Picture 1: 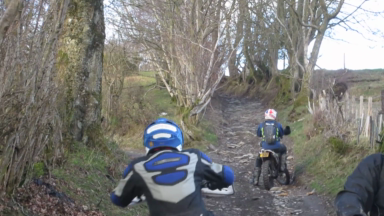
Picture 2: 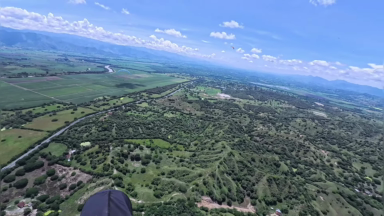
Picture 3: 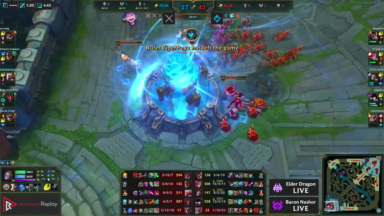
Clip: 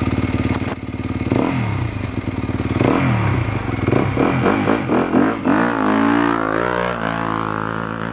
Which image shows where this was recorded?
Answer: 1